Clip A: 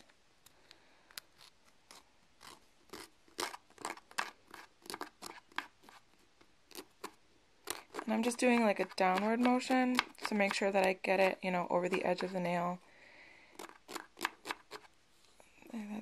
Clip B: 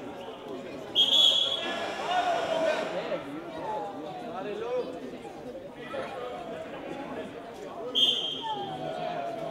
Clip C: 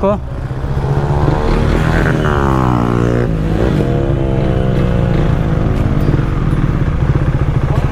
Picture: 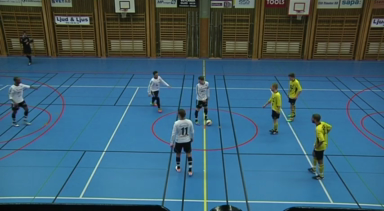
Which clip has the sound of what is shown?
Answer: B